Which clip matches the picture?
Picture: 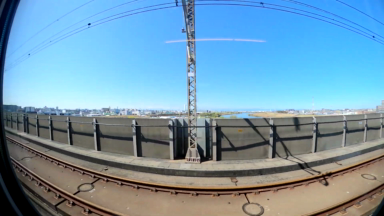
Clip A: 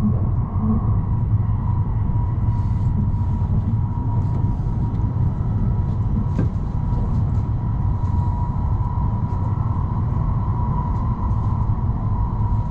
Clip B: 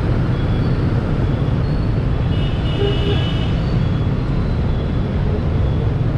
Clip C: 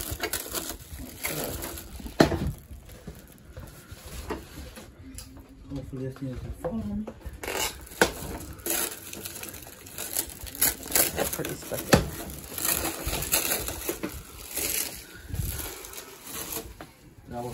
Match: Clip A